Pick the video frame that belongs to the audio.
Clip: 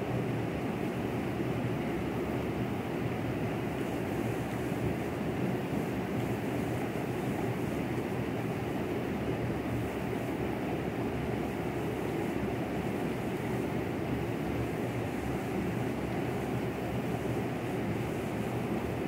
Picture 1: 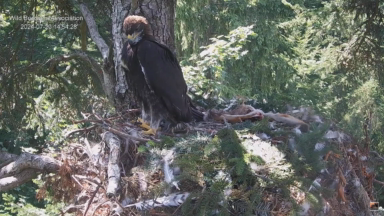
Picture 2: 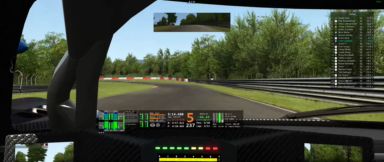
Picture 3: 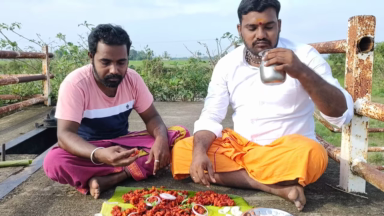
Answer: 3